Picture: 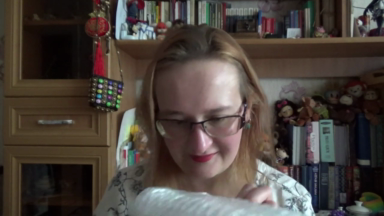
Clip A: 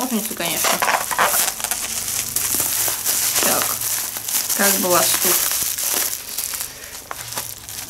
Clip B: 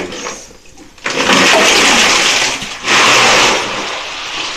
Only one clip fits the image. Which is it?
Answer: A